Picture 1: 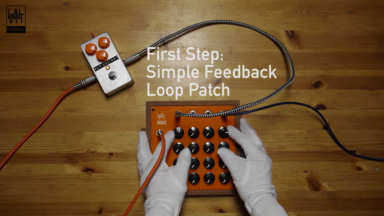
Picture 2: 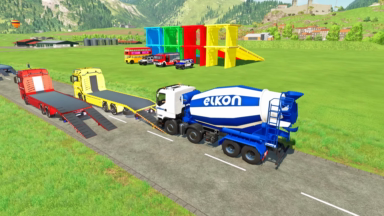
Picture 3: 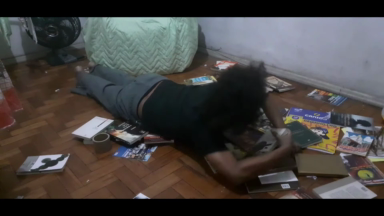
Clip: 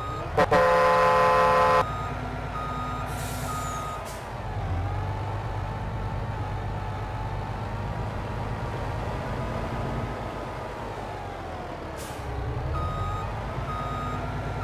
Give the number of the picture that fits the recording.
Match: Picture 2